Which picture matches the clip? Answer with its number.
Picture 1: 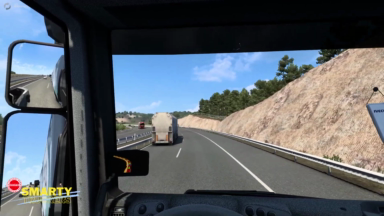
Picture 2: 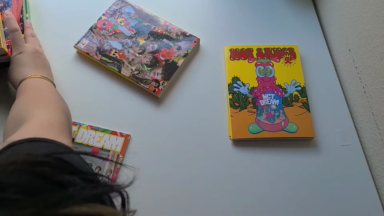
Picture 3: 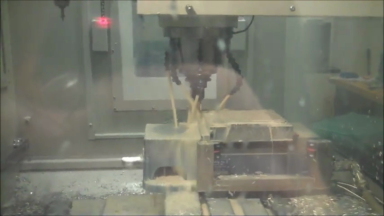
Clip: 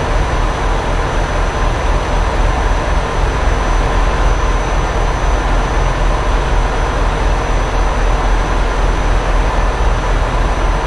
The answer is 1